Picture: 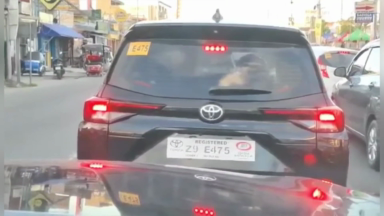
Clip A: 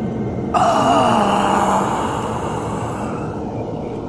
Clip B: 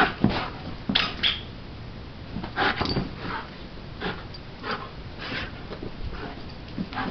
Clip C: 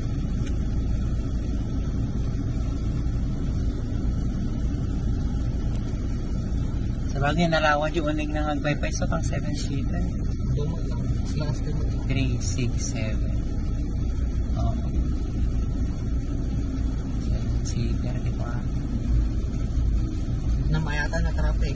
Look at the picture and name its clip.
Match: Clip C